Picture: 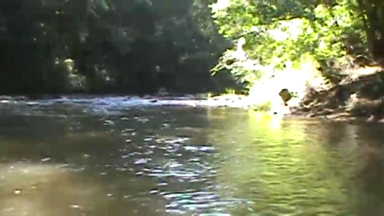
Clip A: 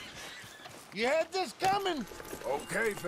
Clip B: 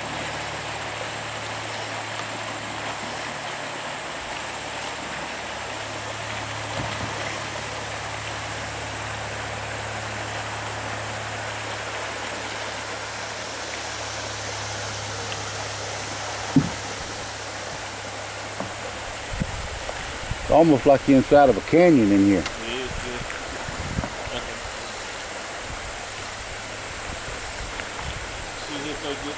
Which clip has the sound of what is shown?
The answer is B